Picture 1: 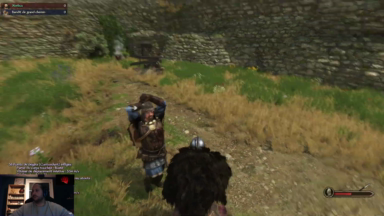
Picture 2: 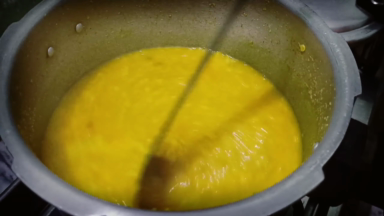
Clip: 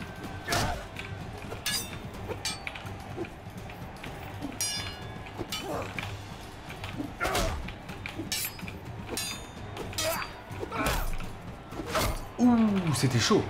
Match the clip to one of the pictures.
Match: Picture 1